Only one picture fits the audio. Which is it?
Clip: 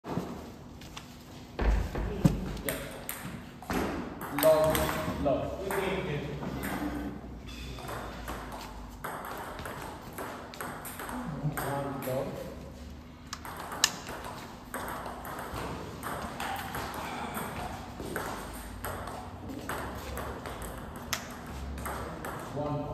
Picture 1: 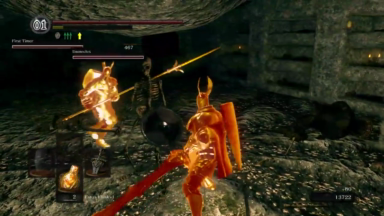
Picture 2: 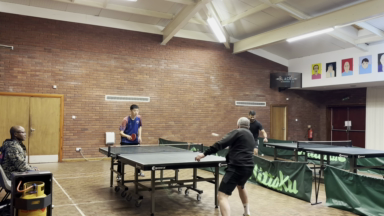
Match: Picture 2